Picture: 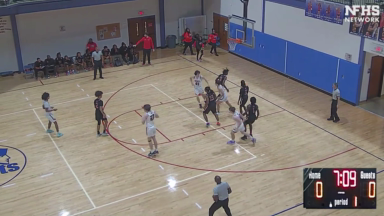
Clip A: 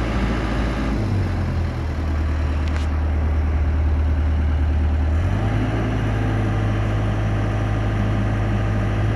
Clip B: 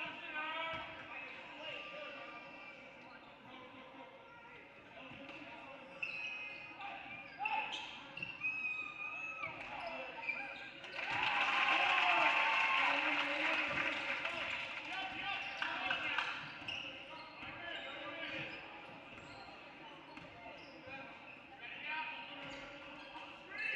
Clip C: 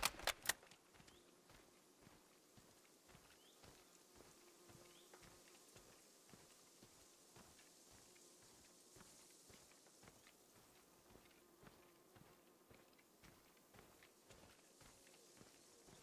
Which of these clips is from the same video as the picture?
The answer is B